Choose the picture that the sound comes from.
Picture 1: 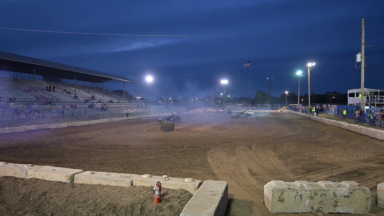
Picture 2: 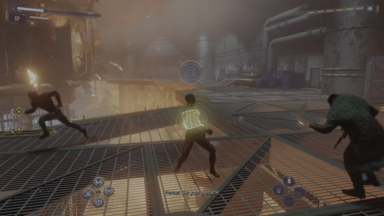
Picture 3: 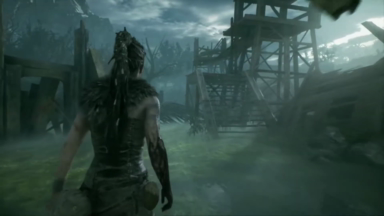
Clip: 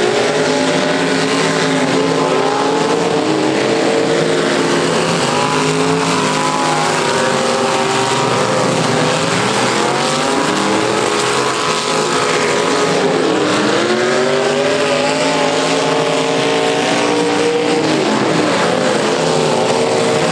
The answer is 1